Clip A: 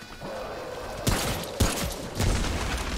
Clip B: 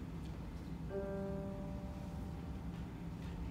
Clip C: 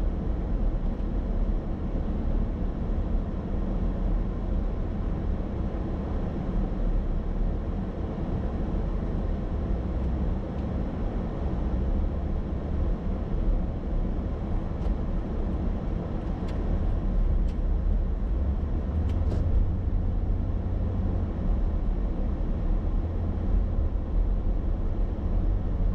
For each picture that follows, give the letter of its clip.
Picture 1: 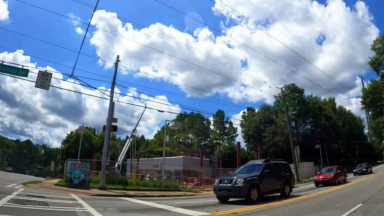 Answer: C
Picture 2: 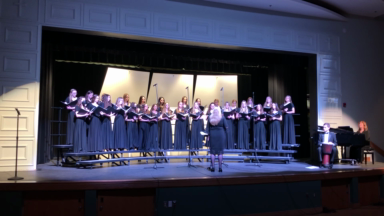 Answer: B